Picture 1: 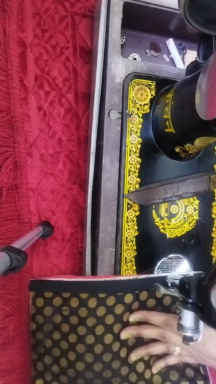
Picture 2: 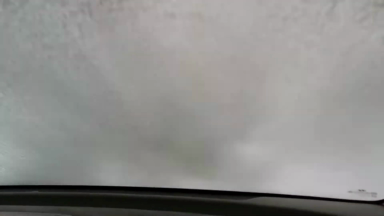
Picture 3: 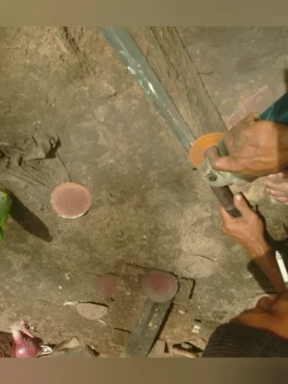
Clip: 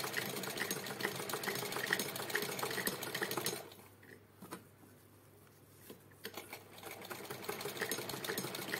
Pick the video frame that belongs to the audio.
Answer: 1